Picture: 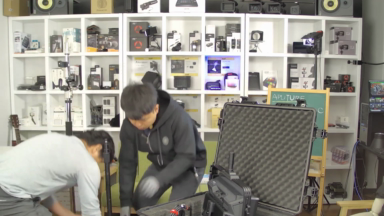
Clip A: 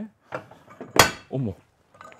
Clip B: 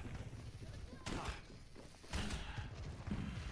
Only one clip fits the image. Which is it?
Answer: A